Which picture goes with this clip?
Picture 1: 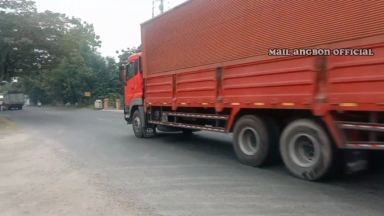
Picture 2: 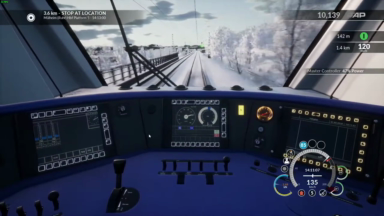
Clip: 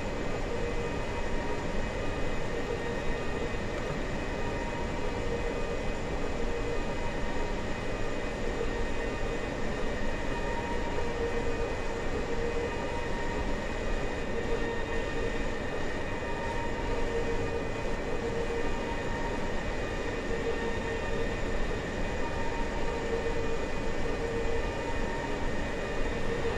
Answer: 2